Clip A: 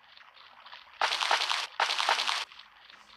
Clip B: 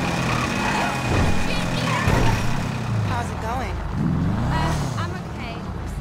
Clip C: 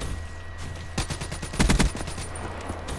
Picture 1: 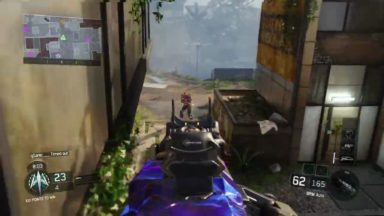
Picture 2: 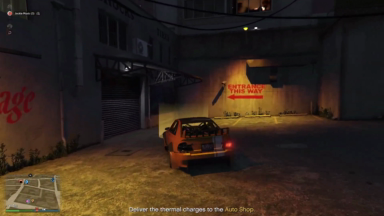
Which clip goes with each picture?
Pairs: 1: C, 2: B